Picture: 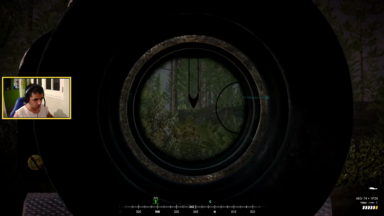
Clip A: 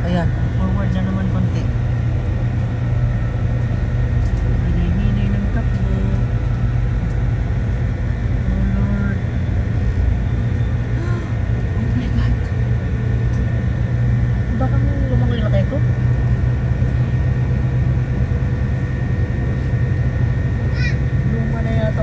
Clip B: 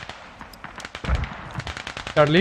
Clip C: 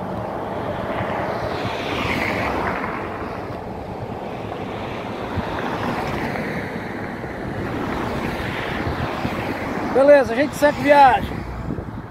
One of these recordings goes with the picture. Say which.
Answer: B